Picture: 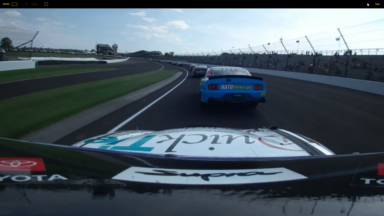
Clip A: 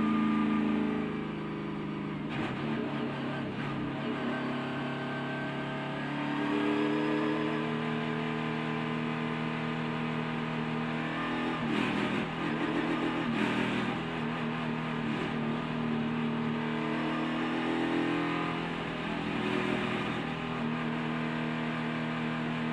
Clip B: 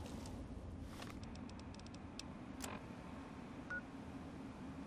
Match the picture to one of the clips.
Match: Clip A